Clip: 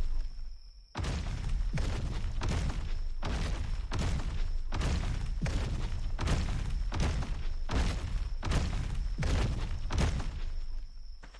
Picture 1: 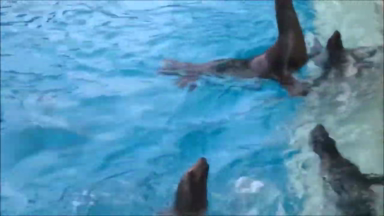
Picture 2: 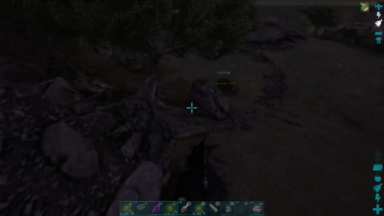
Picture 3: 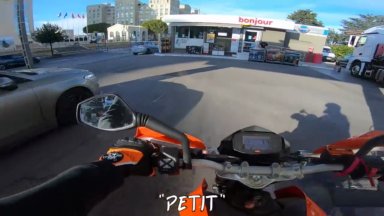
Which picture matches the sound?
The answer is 2